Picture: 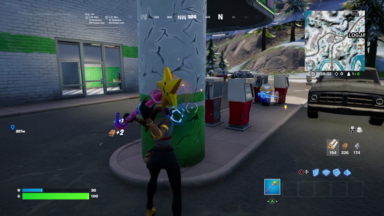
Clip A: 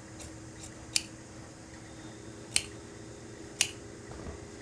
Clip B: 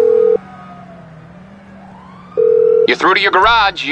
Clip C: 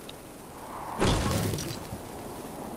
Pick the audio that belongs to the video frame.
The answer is C